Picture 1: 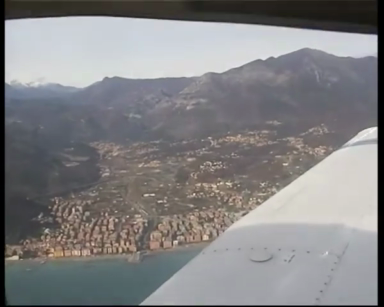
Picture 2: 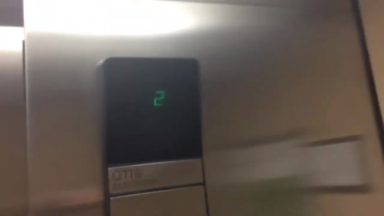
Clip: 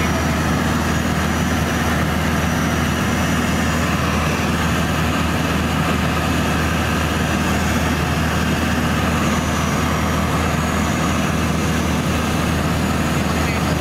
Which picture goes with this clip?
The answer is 1